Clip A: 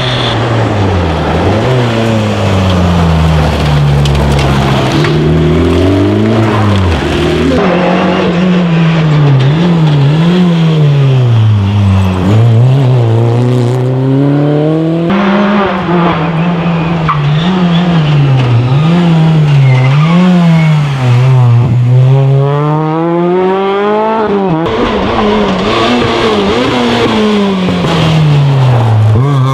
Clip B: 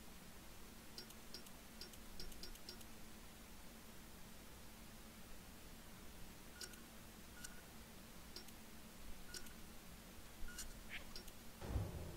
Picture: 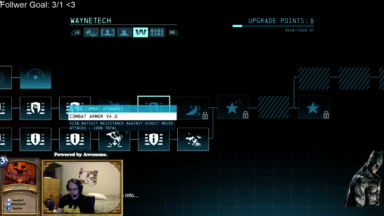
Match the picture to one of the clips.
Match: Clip B